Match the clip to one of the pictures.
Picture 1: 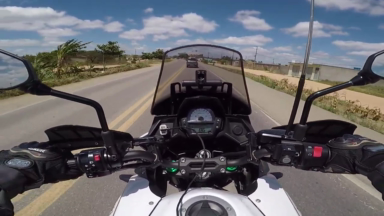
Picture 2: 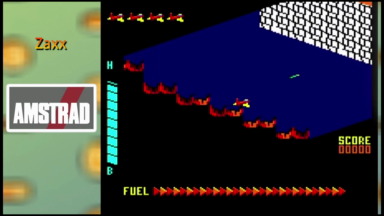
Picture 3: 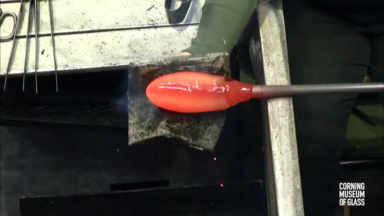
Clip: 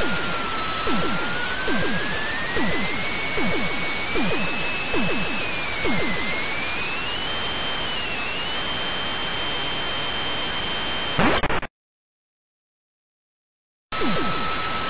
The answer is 2